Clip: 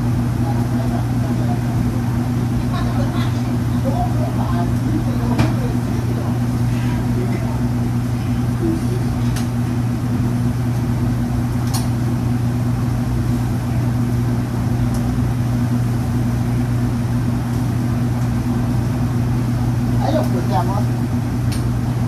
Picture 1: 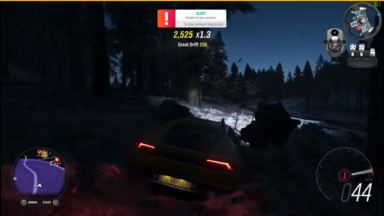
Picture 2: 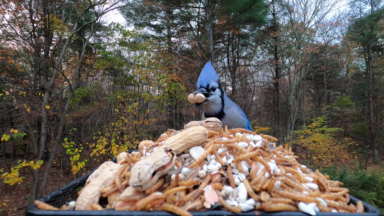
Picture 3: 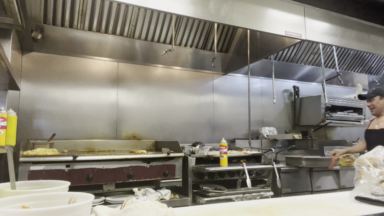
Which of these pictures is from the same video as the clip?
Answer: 3